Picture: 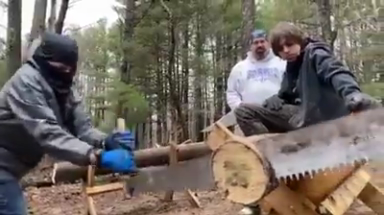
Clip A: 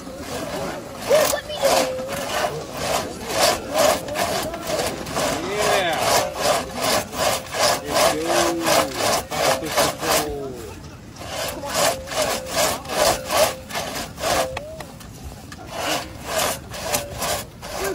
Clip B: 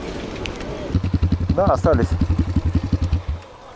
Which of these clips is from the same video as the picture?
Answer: A